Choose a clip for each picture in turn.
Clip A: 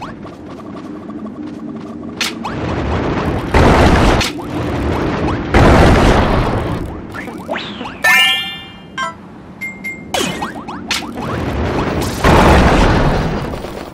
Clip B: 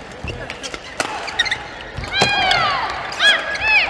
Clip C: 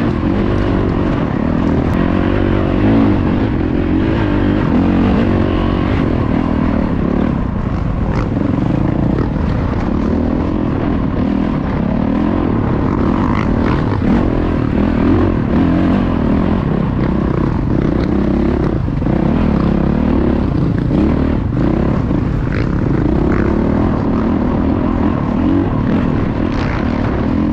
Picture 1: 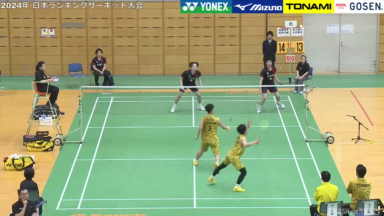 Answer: B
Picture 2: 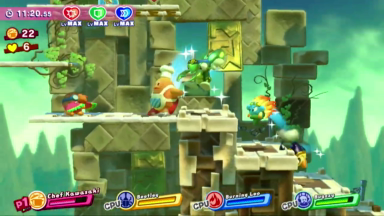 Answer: A